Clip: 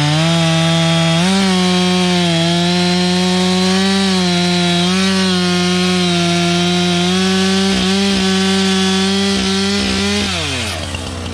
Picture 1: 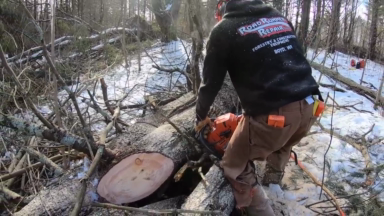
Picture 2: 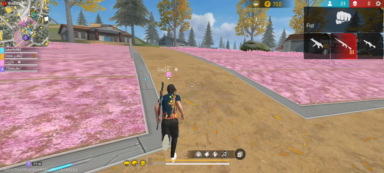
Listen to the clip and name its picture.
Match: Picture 1